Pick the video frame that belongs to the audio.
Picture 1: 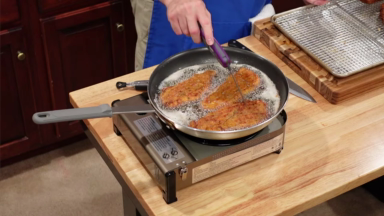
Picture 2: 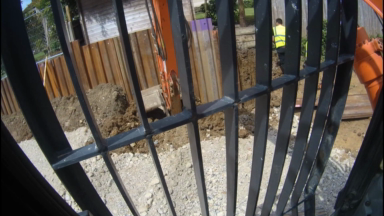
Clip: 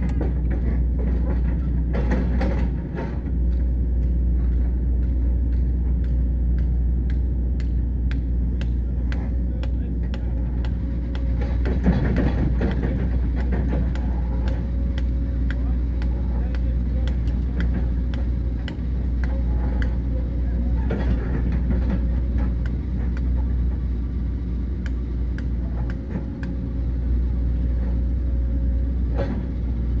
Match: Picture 2